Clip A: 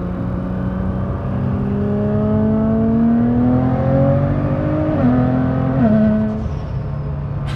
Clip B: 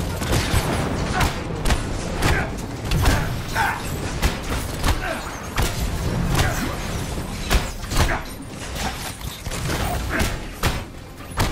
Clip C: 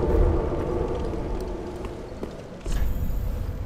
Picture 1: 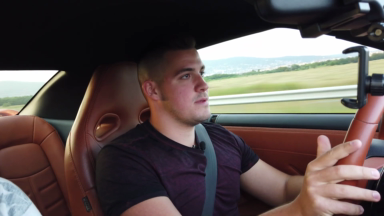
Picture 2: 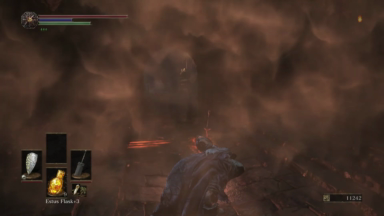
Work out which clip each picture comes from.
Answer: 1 A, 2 C